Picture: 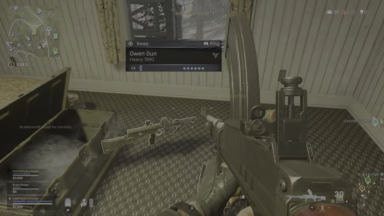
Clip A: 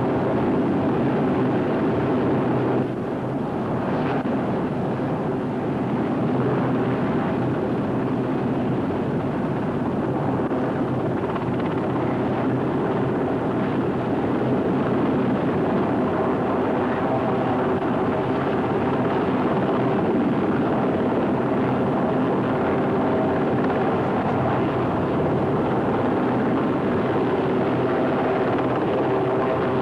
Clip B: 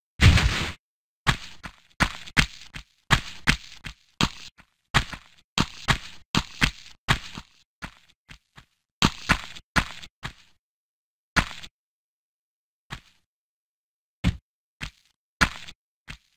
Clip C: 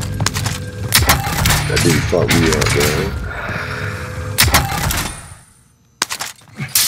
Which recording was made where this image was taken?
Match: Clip C